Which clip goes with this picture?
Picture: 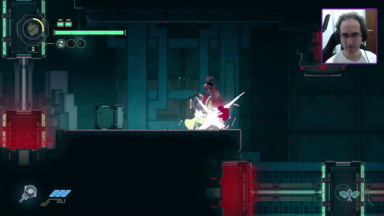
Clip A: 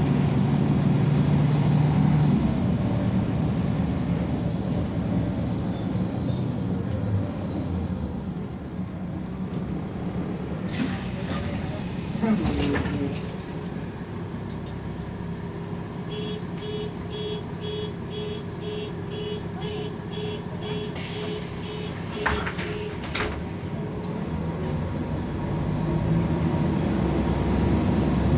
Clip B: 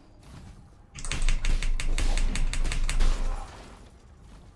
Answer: B